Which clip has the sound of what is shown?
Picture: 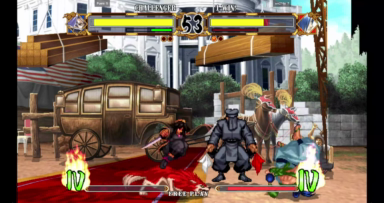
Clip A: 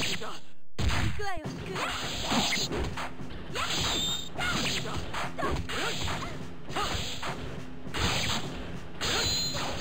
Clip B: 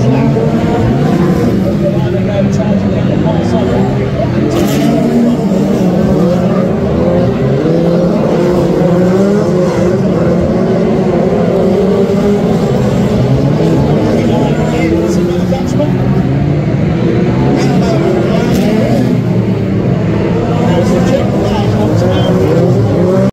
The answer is A